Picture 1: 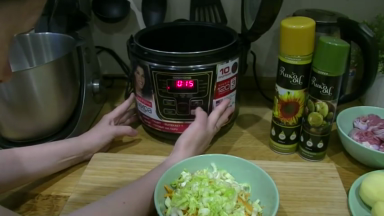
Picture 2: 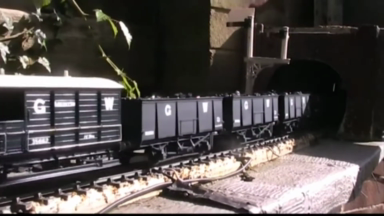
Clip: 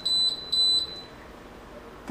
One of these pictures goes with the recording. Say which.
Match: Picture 1